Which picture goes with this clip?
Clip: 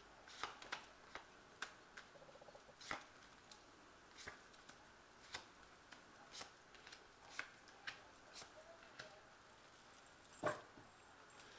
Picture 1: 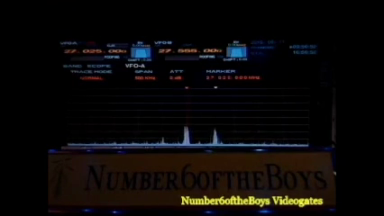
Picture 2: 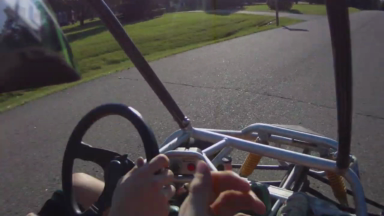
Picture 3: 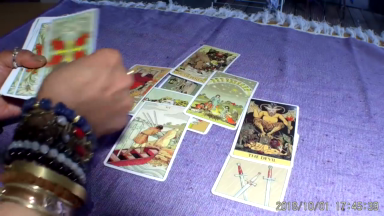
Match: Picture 3